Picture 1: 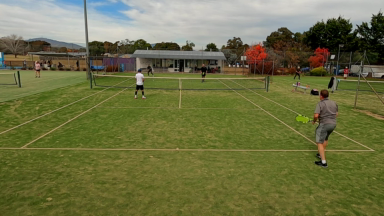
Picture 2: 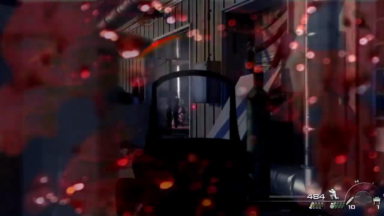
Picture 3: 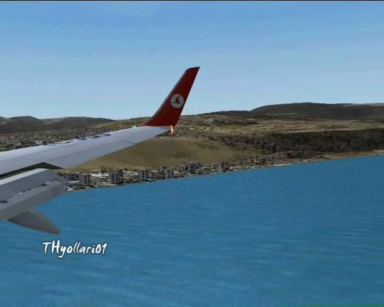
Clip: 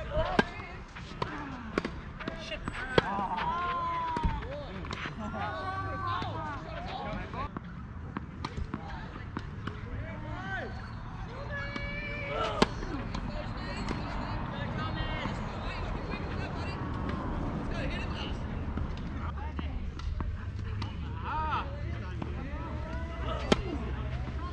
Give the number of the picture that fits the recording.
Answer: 1